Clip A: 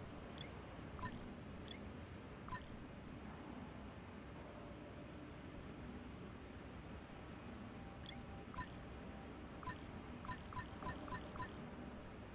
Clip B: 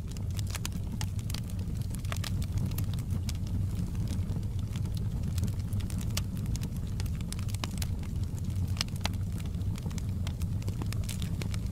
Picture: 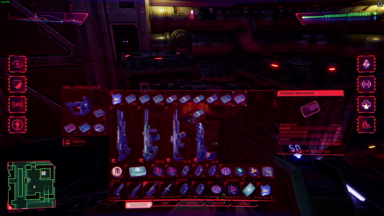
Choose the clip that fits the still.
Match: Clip A